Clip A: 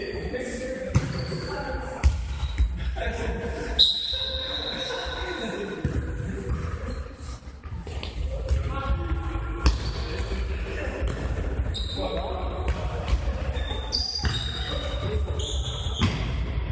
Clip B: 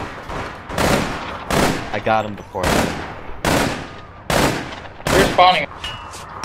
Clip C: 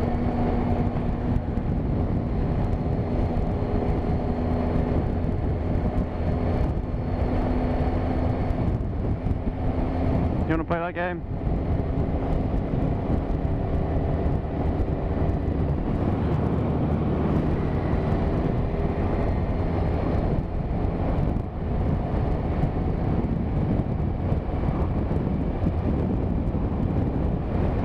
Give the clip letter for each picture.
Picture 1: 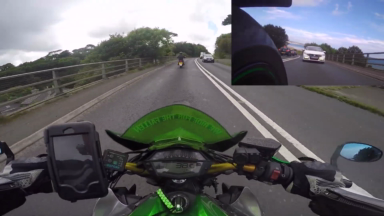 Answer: C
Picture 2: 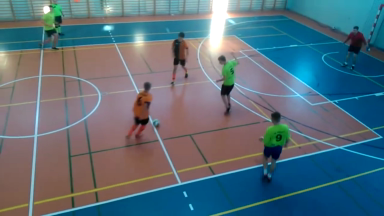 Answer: A